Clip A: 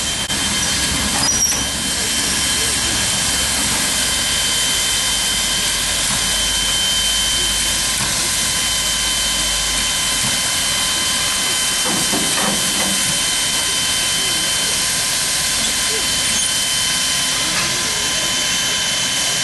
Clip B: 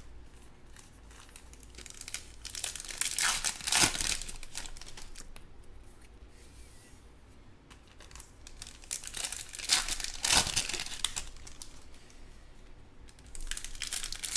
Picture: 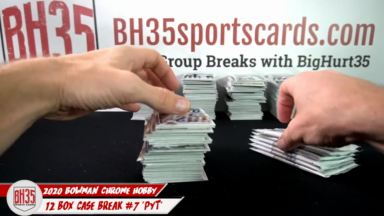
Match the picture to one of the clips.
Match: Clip B